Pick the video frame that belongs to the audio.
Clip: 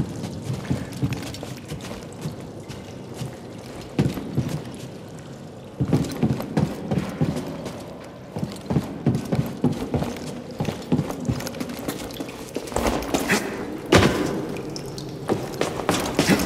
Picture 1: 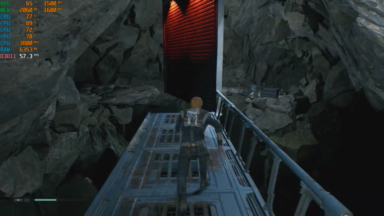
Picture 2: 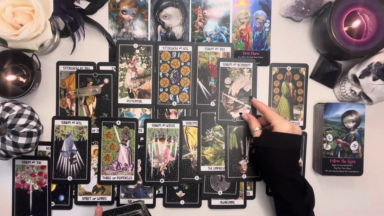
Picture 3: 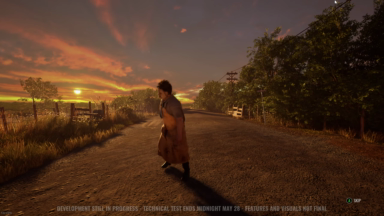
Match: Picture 1